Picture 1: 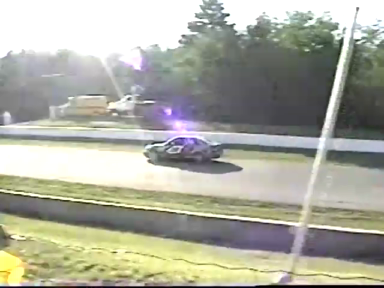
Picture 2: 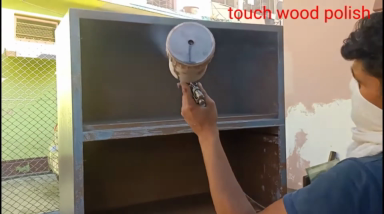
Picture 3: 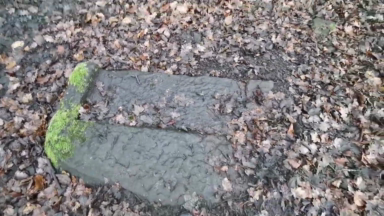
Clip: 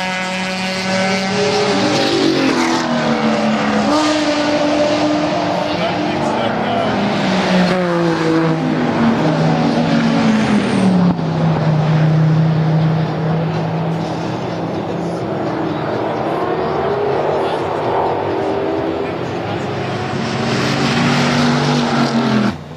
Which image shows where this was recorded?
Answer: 1